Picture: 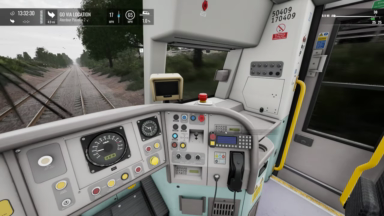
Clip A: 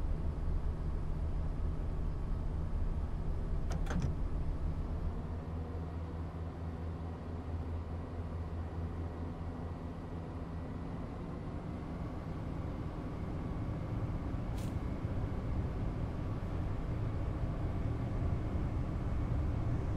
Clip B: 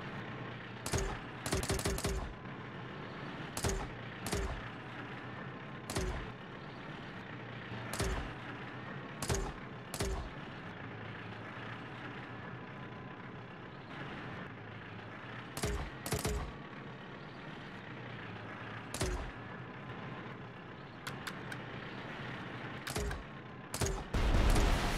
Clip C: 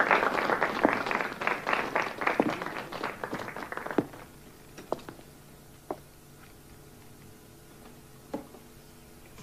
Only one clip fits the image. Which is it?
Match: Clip A